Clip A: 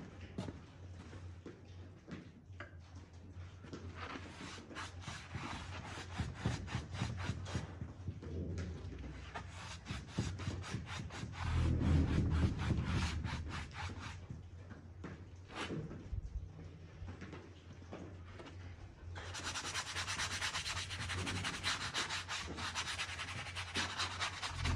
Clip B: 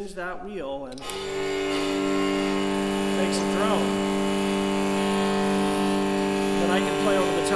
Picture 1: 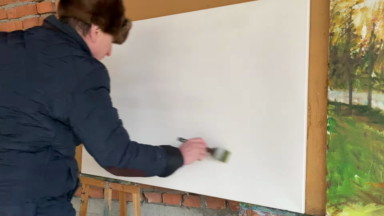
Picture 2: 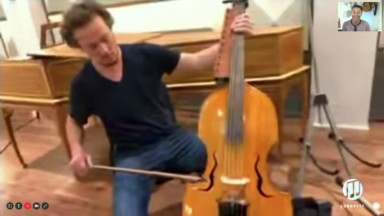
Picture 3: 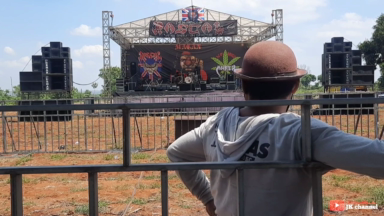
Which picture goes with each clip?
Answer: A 1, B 2